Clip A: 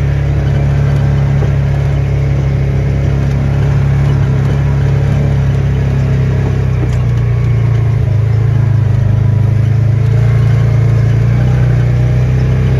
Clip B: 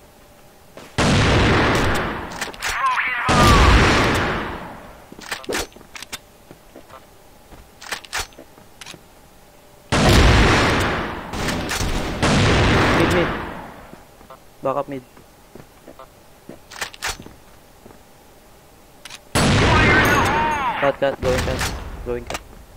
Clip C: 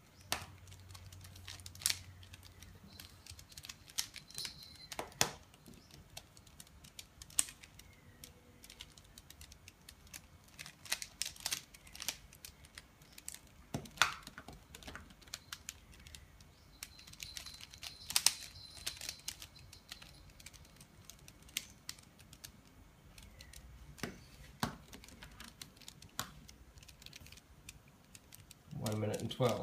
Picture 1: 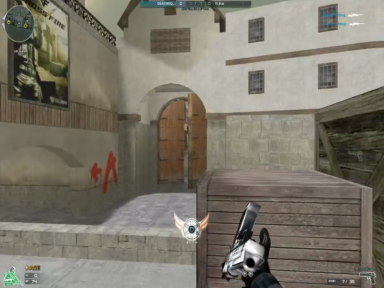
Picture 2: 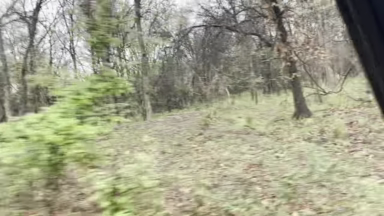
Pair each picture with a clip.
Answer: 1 B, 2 A